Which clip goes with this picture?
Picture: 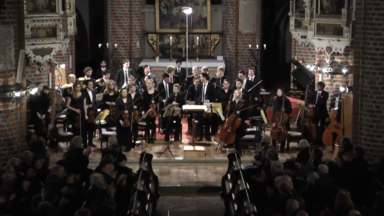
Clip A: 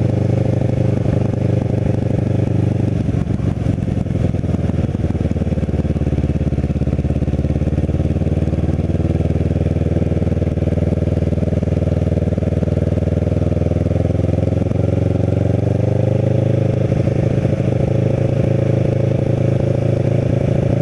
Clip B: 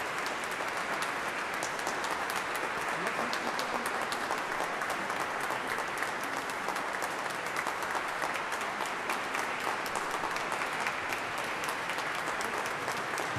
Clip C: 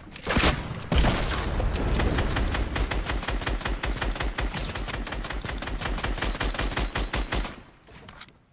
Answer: B